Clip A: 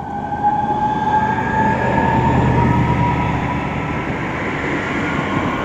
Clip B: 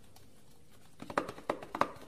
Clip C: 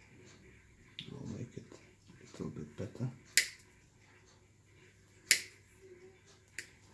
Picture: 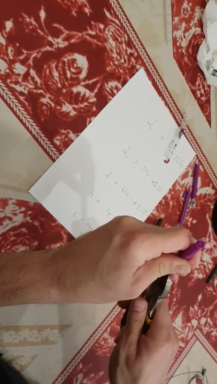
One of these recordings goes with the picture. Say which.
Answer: C